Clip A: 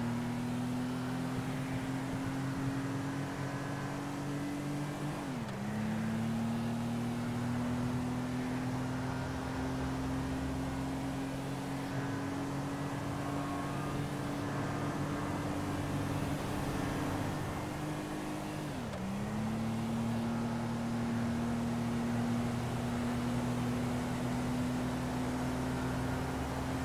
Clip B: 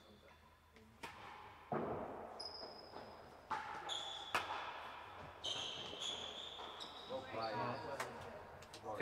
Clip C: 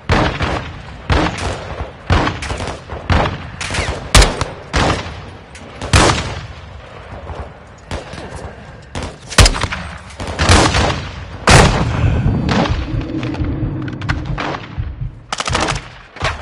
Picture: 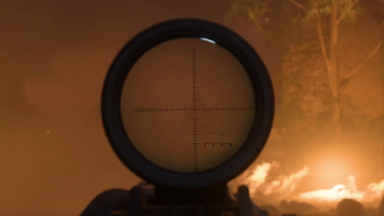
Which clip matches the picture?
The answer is C